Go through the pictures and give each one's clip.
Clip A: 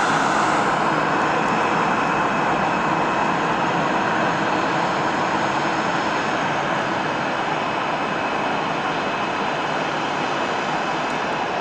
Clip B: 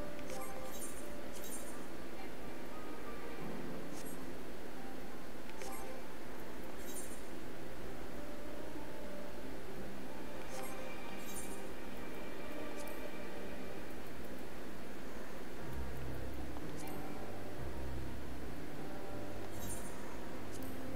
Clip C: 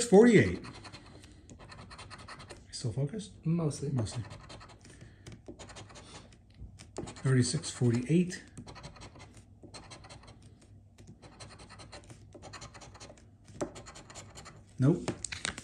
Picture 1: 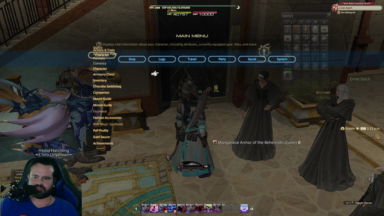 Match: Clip B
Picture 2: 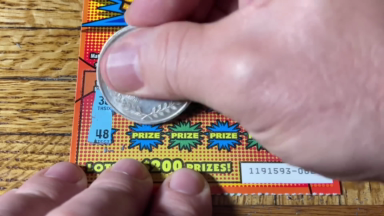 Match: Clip C